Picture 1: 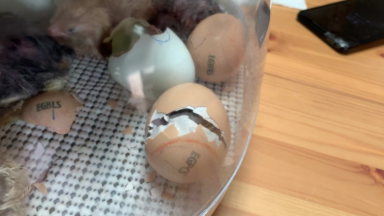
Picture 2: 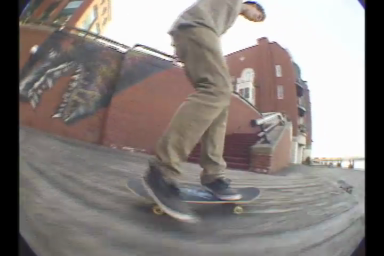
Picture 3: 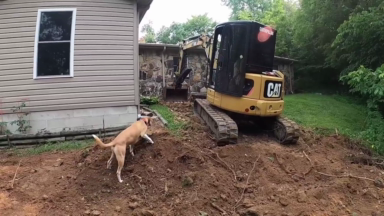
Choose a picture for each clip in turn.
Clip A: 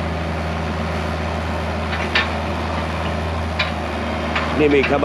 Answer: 3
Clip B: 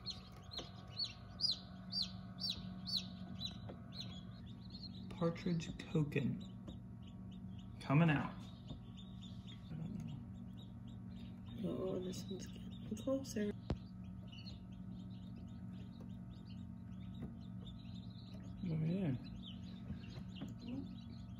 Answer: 1